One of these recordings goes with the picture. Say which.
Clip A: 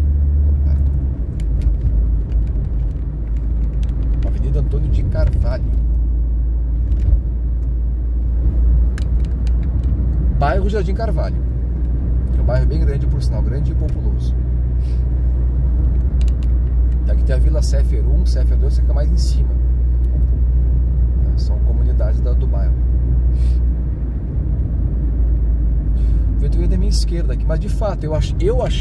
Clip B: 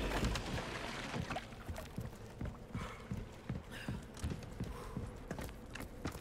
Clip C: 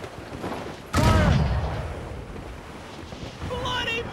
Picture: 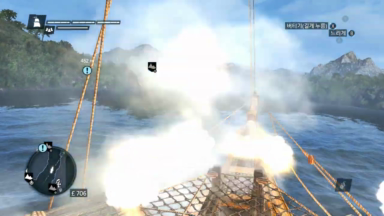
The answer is C